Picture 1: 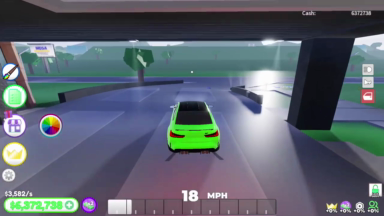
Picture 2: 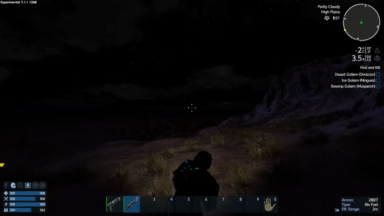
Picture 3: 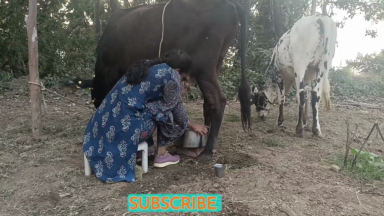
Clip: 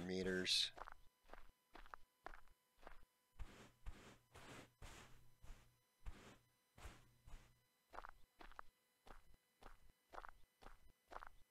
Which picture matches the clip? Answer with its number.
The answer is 2